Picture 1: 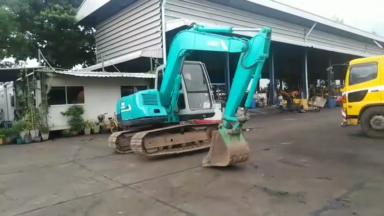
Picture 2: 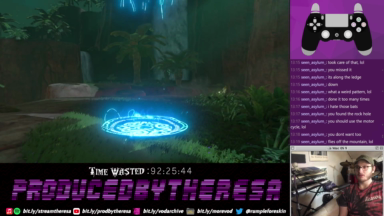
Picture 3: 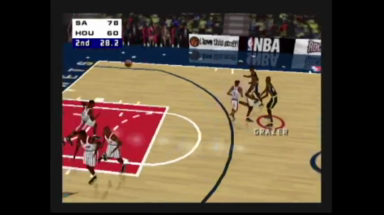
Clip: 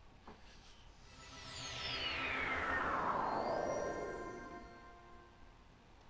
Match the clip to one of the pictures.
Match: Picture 2